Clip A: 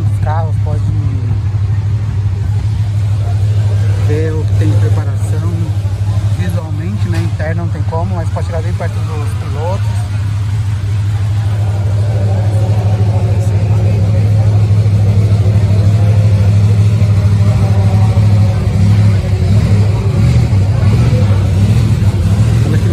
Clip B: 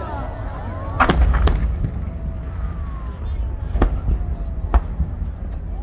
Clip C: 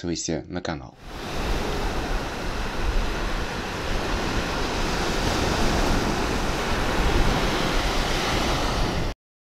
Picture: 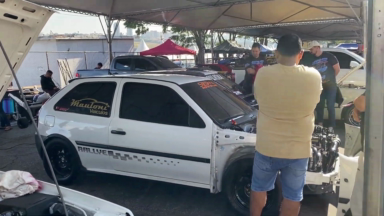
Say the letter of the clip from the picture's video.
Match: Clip A